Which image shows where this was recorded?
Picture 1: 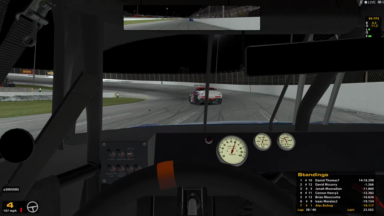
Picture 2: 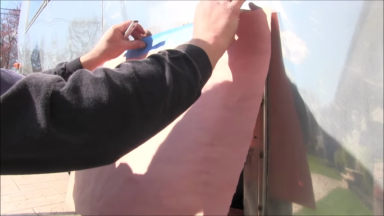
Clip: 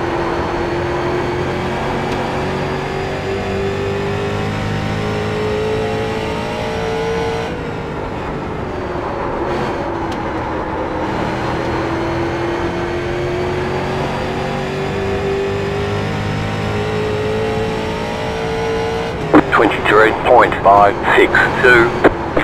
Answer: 1